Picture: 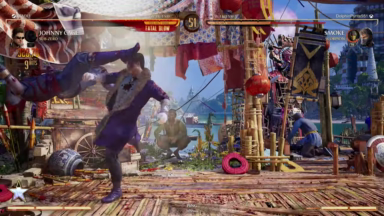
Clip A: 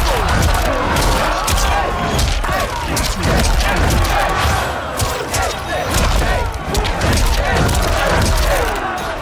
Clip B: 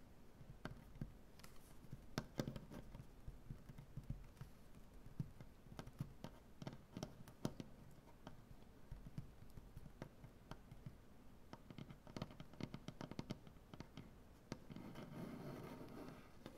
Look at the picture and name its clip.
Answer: A